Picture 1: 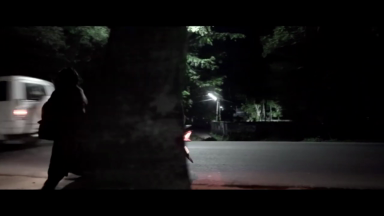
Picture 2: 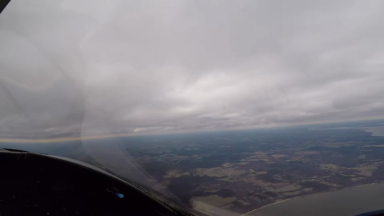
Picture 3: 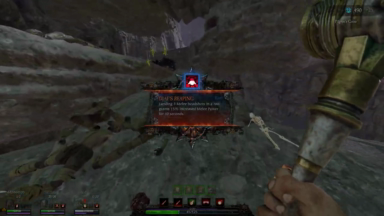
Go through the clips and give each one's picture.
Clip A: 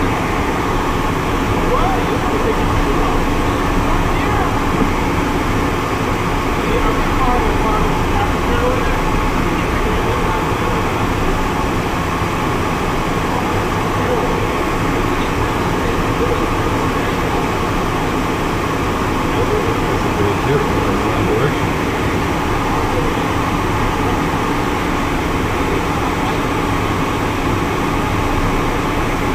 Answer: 2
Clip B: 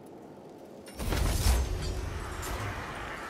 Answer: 3